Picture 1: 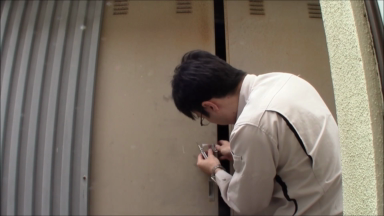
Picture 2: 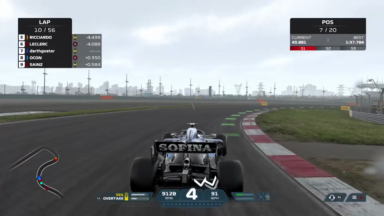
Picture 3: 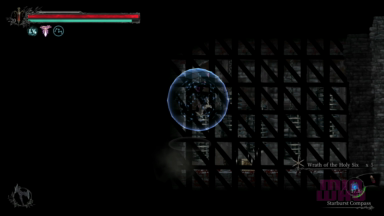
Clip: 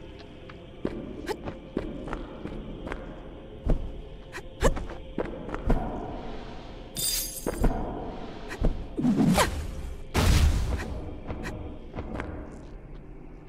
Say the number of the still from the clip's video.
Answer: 3